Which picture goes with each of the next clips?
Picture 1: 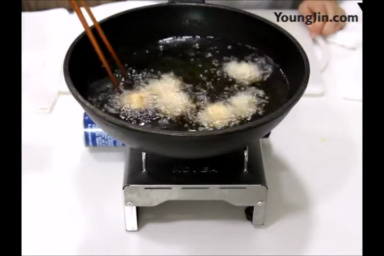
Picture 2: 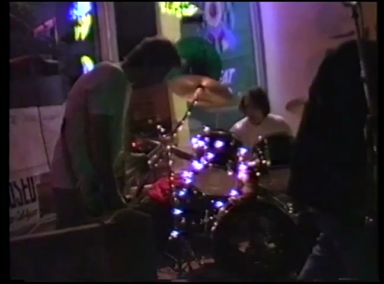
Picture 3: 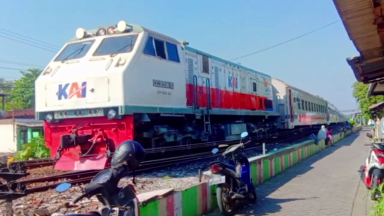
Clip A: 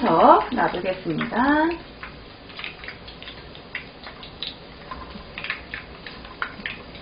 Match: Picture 1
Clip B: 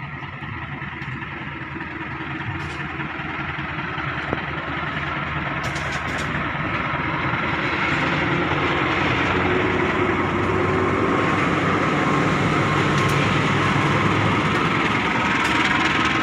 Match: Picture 3